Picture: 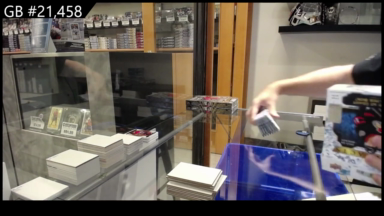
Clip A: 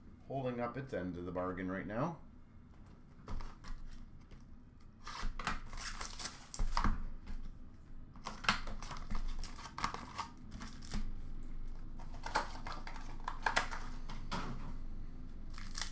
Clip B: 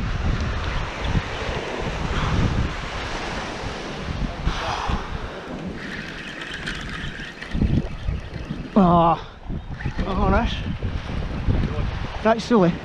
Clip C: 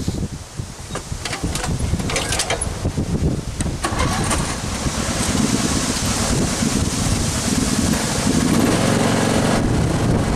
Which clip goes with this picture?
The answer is A